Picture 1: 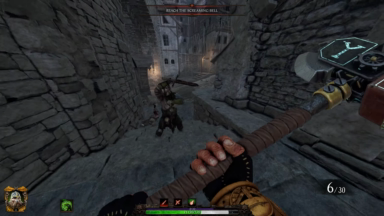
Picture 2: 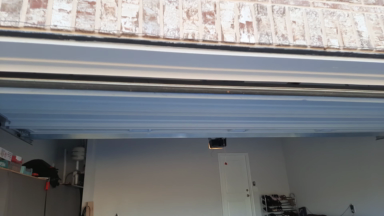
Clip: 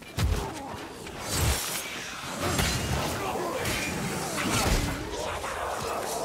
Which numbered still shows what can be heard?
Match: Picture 1